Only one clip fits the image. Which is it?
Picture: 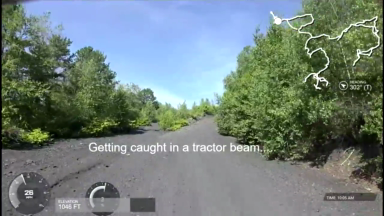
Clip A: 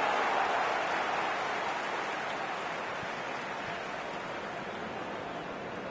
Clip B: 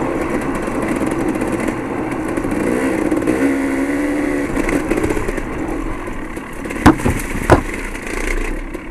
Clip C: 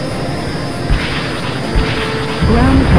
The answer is B